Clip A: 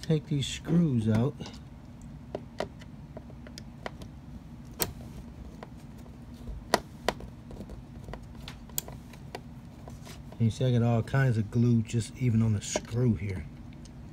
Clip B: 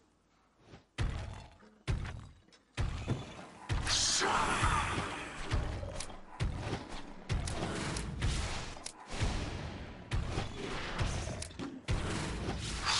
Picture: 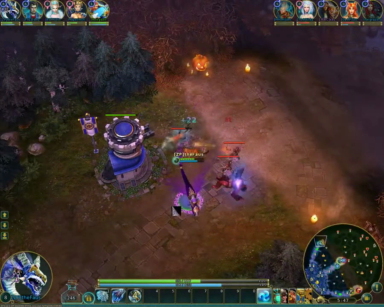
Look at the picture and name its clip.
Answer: B